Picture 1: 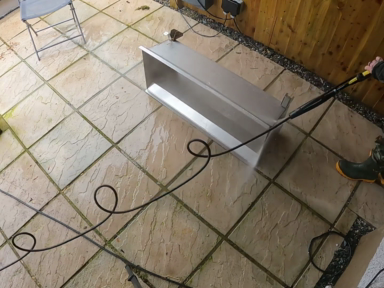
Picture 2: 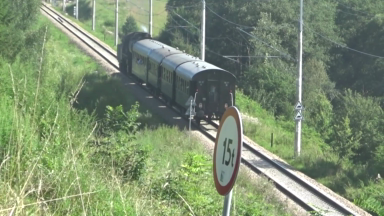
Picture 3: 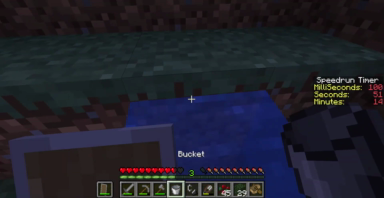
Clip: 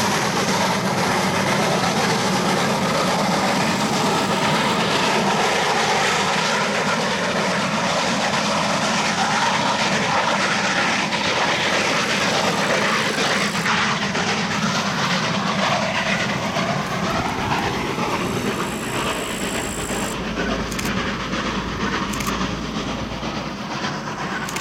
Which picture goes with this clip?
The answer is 2